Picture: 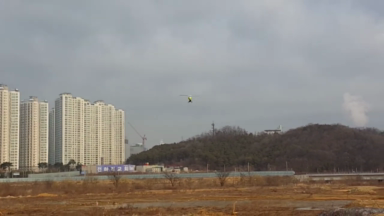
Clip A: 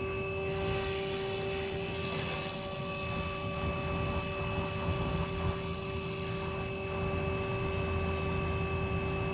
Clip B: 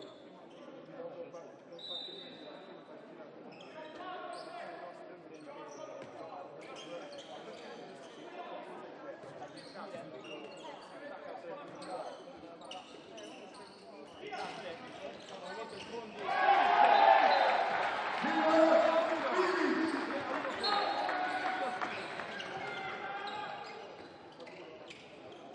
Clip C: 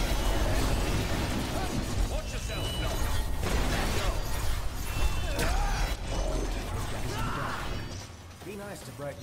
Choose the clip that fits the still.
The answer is A